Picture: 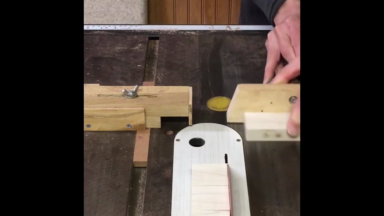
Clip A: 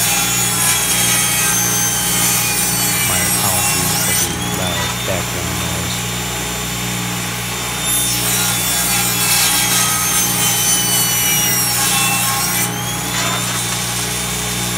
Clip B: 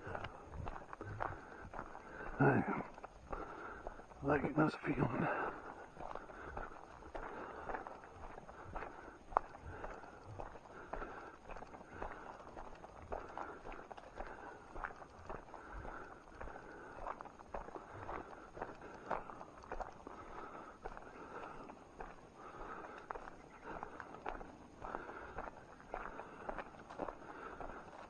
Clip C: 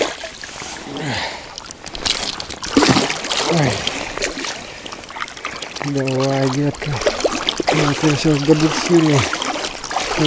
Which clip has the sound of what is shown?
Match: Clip A